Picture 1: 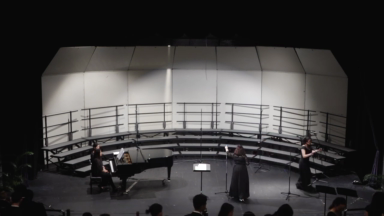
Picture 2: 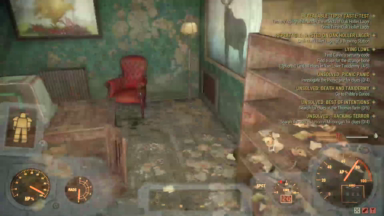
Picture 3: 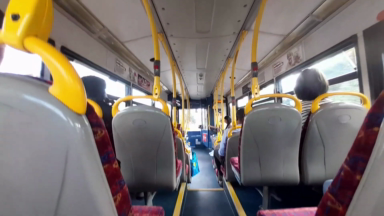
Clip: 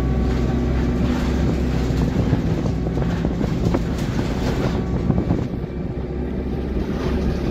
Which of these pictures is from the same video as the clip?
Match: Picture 3